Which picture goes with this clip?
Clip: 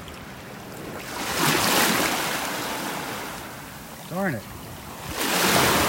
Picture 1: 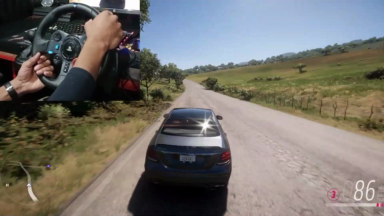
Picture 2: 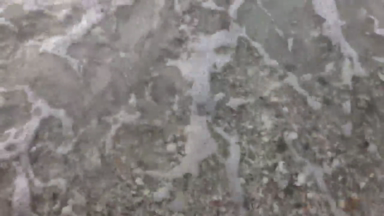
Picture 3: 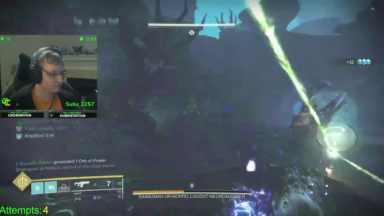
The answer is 2